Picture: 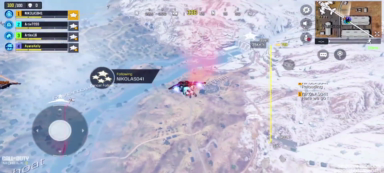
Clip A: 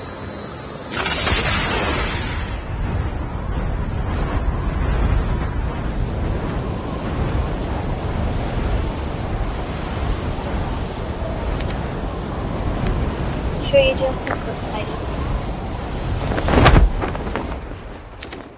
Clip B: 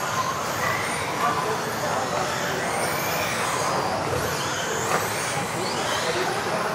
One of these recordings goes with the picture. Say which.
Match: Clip A